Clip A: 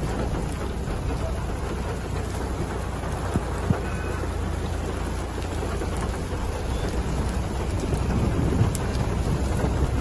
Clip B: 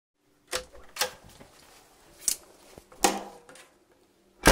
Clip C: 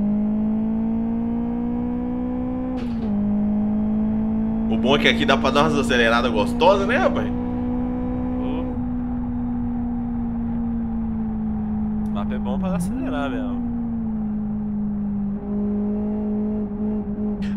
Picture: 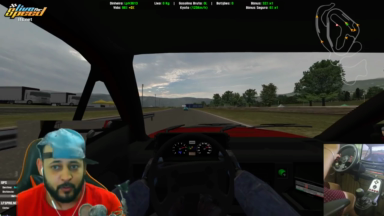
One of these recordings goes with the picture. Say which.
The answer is C